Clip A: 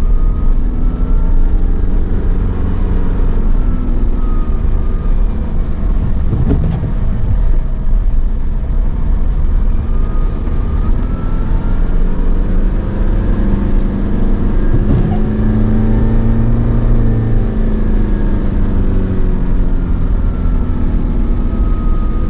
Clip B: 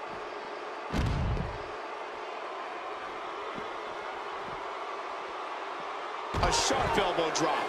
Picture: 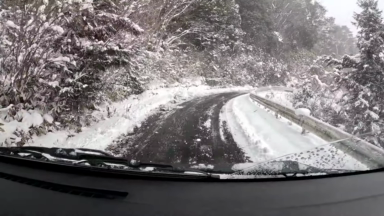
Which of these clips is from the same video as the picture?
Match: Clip A